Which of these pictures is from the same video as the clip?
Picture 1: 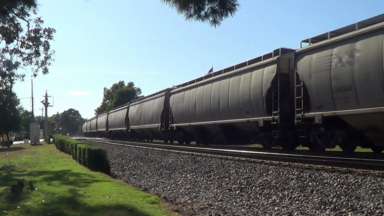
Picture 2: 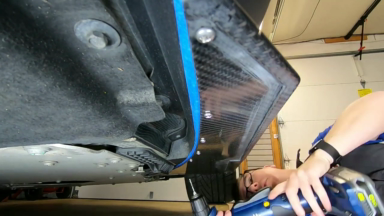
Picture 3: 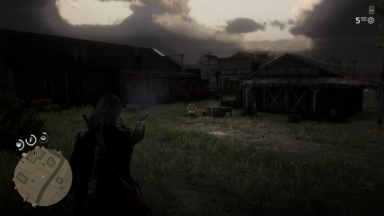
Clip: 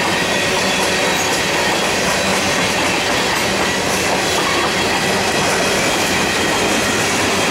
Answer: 1